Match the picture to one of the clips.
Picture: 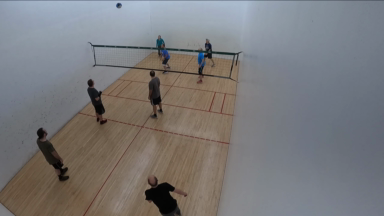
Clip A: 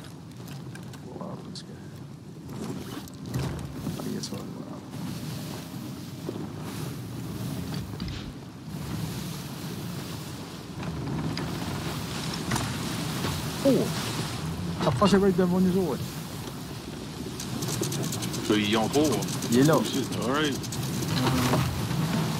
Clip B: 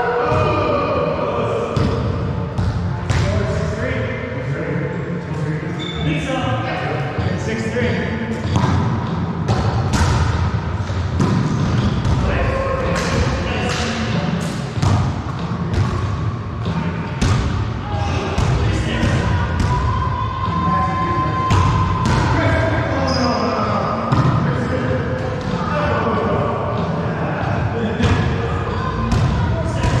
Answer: B